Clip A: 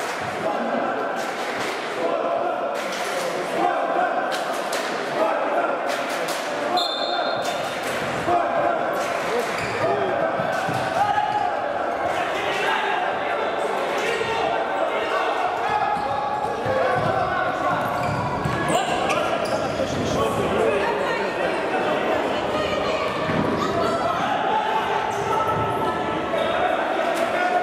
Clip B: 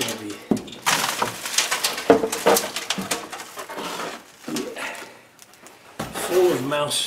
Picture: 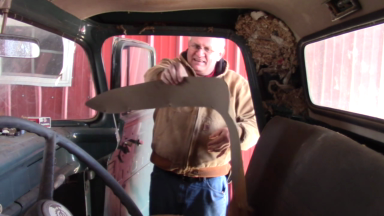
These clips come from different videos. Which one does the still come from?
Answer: B